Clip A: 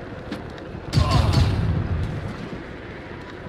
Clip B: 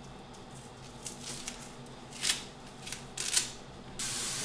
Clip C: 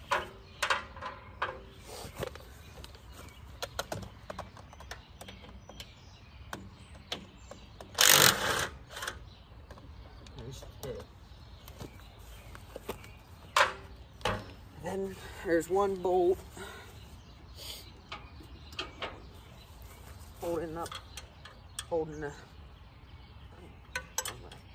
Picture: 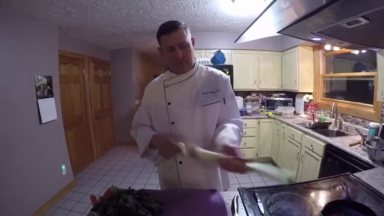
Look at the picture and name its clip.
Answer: B